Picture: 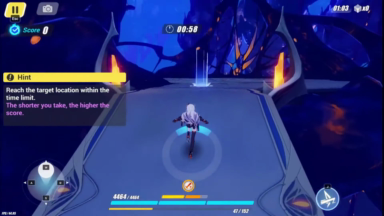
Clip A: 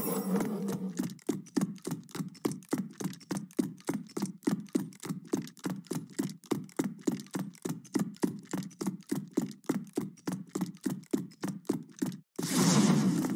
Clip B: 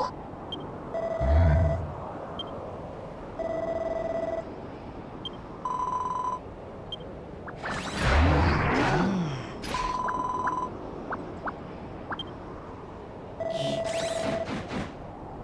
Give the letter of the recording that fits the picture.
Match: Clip A